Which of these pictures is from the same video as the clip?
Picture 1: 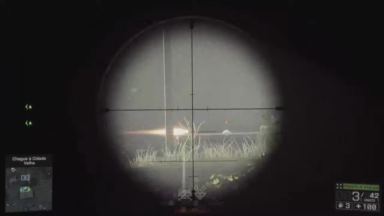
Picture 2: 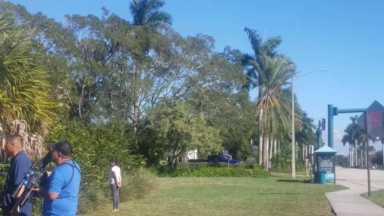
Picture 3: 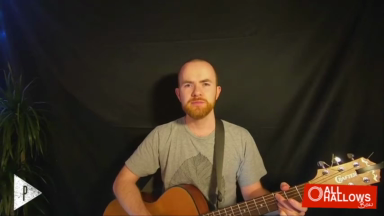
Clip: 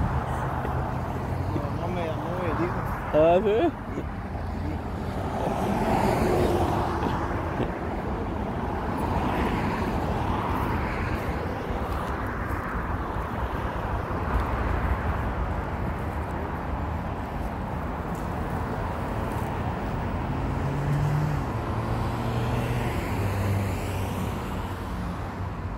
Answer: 2